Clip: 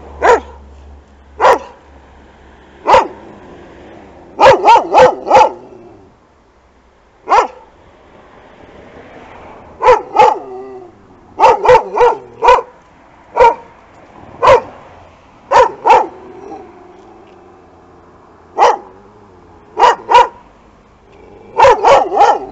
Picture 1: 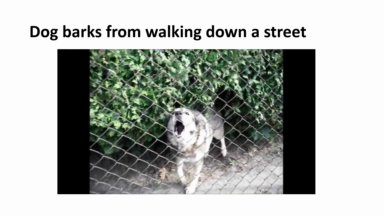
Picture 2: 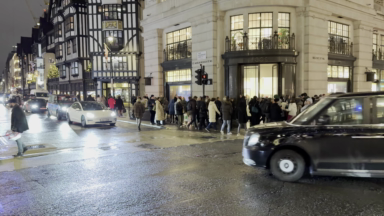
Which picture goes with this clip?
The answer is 1